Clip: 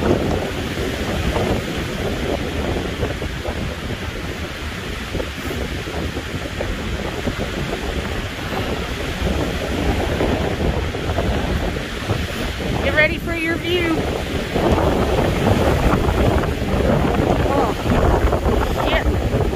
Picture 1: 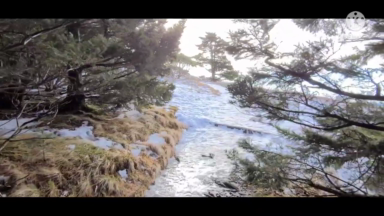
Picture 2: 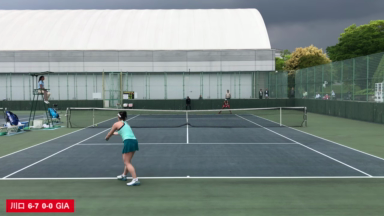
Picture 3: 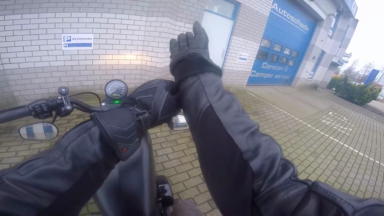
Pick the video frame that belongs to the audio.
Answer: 1